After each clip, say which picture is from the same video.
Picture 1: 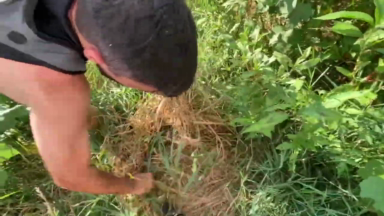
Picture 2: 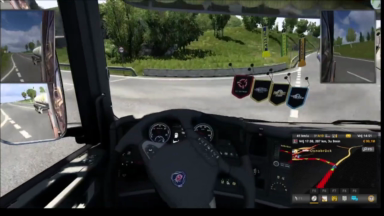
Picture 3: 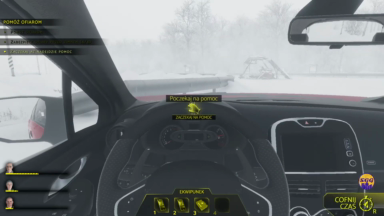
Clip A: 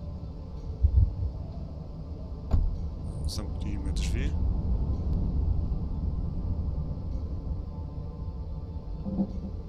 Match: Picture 3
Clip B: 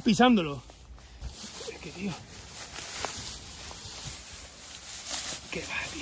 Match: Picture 1